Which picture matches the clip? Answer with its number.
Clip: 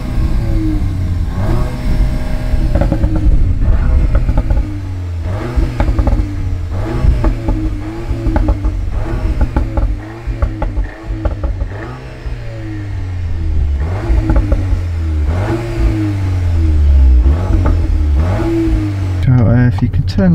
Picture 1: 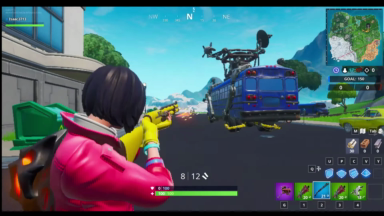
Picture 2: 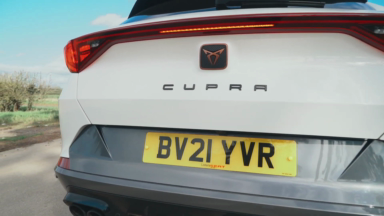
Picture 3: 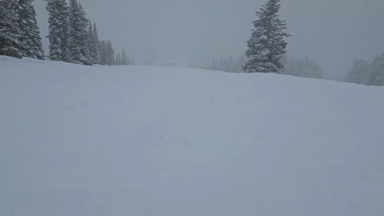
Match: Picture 2